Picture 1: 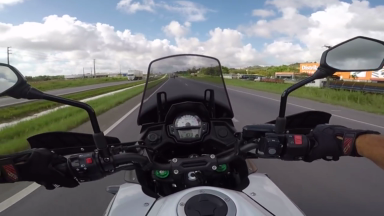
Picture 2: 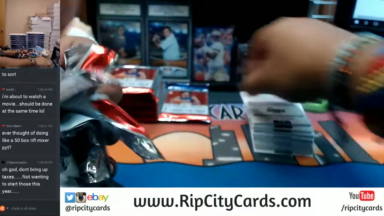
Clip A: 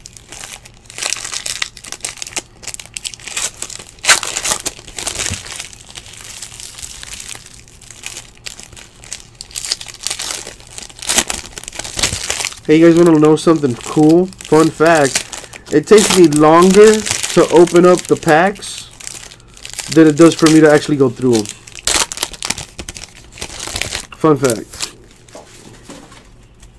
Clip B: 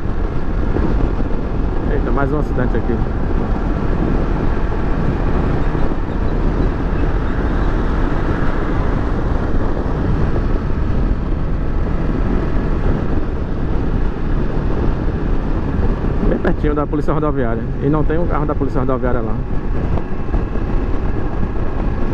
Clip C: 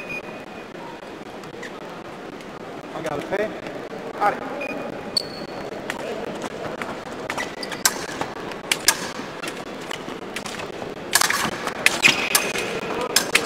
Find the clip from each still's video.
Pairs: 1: B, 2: A